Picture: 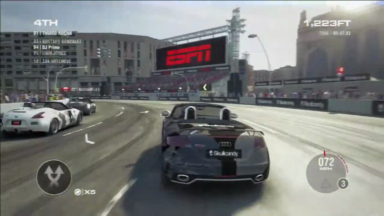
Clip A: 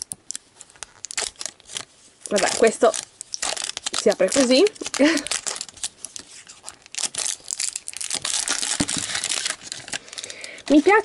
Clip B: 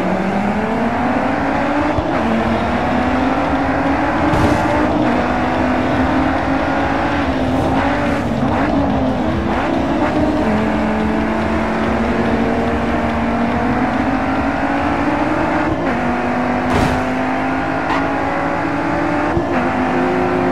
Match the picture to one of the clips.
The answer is B